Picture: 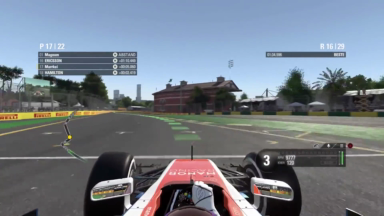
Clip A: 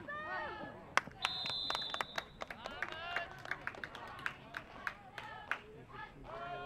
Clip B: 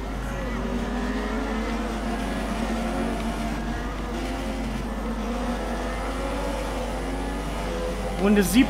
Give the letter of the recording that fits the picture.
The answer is B